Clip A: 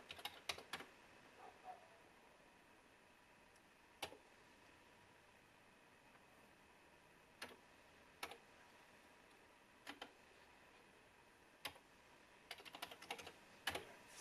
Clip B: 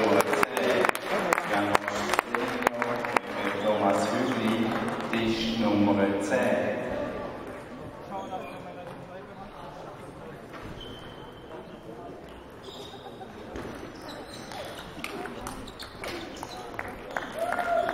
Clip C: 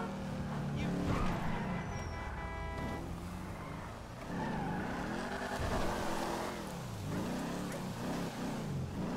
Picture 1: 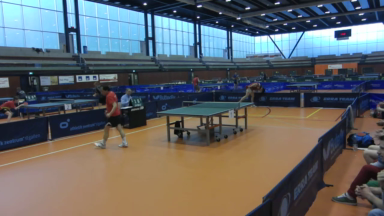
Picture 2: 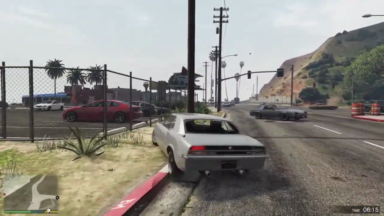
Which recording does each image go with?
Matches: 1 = B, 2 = C